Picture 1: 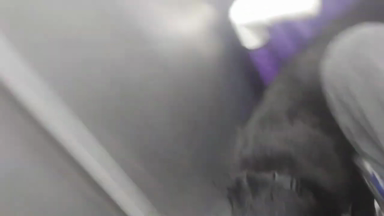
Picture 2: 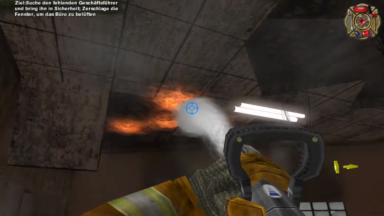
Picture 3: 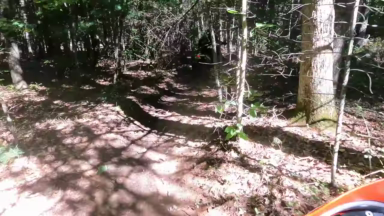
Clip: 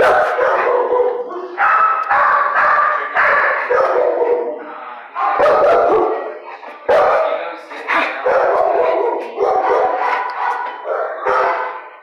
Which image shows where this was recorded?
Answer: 1